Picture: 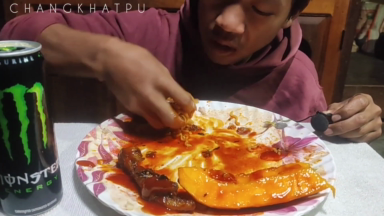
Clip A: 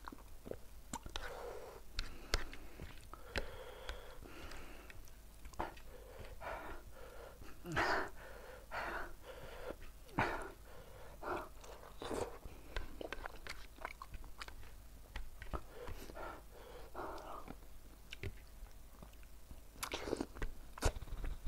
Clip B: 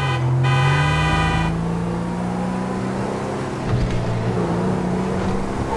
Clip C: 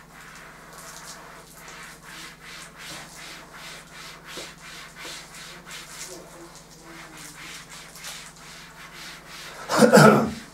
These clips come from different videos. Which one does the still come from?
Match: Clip A